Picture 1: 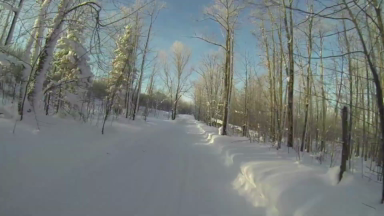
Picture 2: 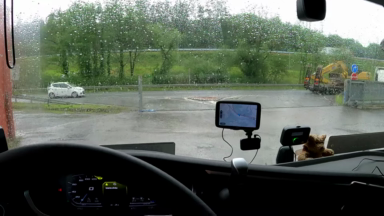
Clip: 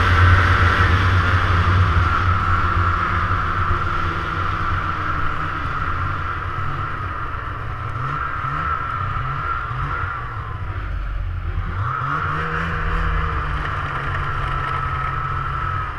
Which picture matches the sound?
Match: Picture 1